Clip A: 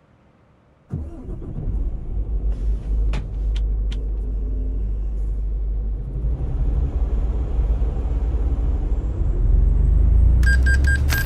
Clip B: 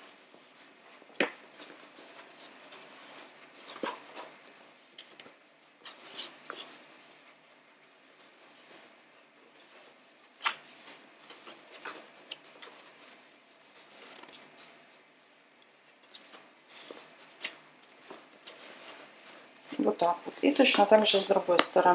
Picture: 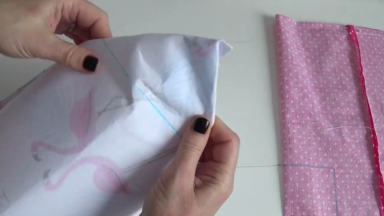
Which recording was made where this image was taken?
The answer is B